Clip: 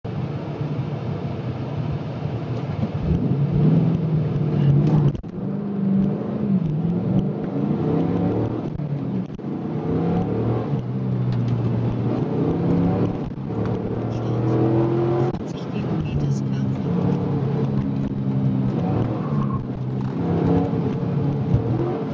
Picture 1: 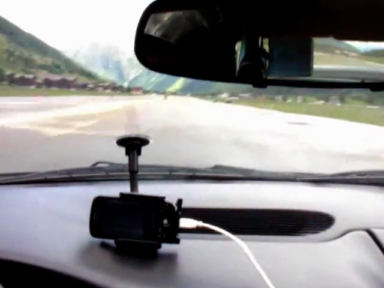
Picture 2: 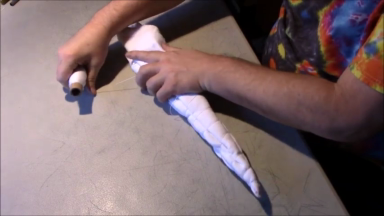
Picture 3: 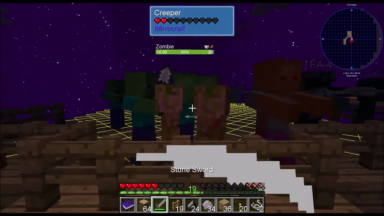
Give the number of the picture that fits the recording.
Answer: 1